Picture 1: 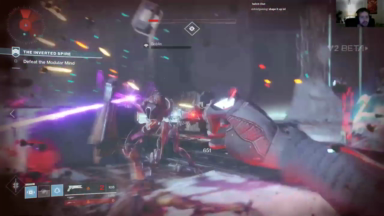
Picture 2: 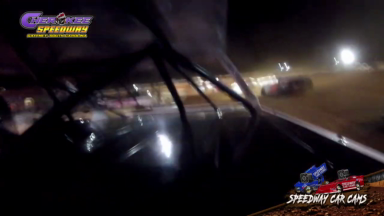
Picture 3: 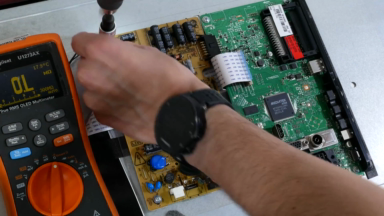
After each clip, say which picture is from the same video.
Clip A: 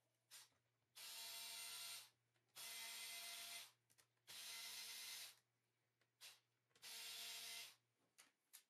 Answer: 3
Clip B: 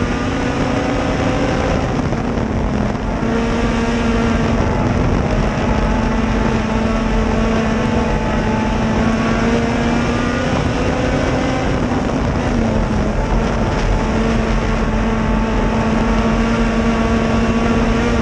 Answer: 2